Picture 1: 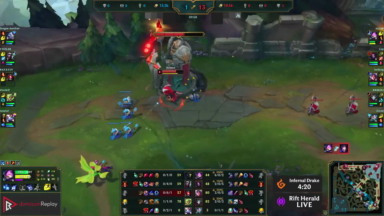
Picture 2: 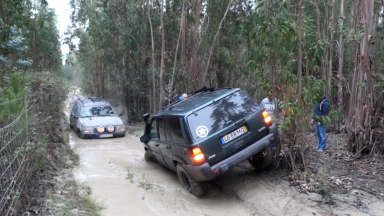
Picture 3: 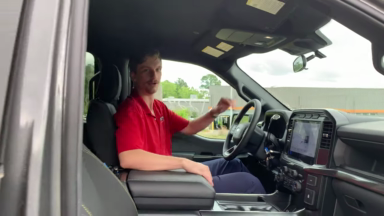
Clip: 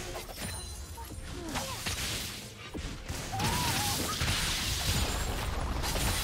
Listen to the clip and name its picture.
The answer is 1